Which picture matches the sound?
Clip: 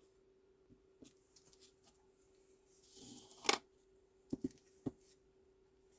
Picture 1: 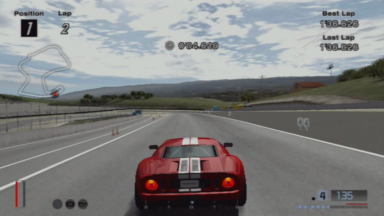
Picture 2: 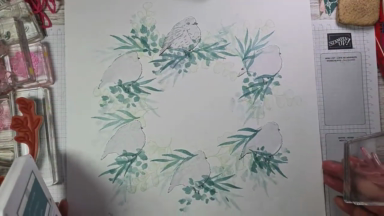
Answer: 2